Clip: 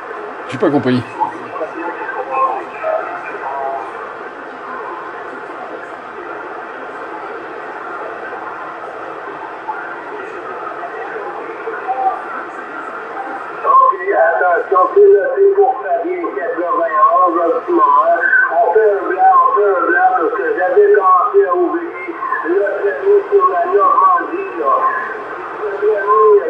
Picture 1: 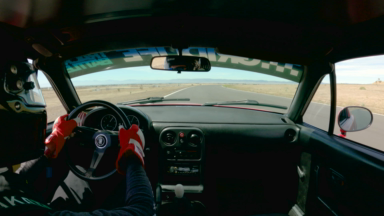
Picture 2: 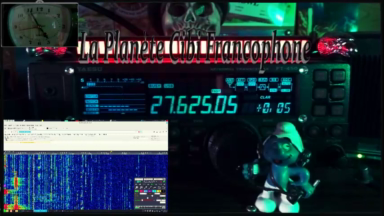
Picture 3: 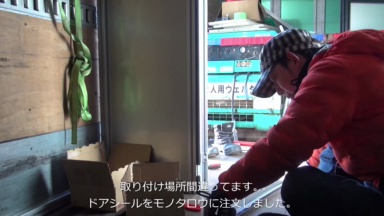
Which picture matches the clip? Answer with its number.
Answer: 2